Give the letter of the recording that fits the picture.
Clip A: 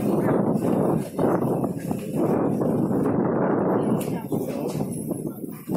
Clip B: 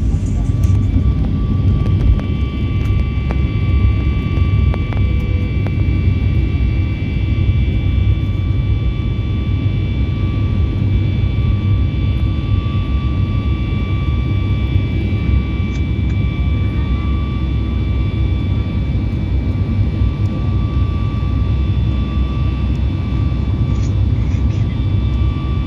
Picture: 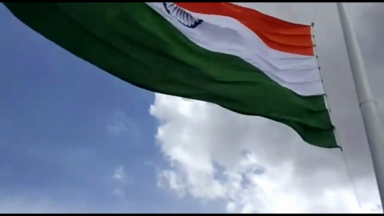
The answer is A